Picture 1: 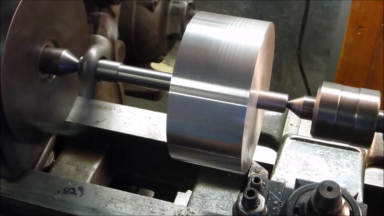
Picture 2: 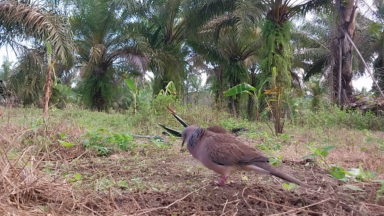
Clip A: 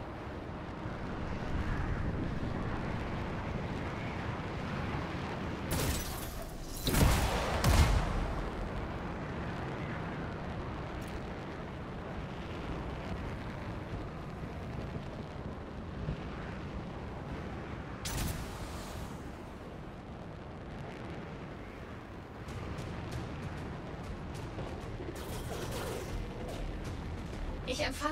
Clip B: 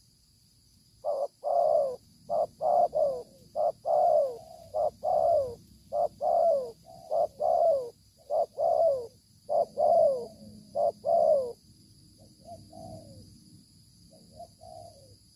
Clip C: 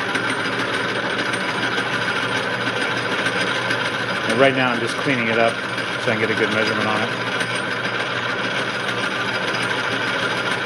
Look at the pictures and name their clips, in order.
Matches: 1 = C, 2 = B